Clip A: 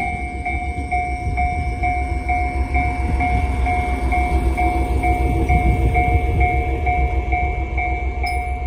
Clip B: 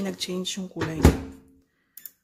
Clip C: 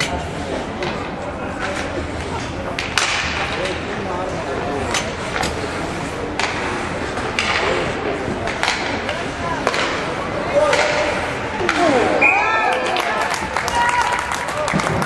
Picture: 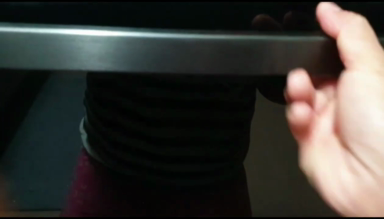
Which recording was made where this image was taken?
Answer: B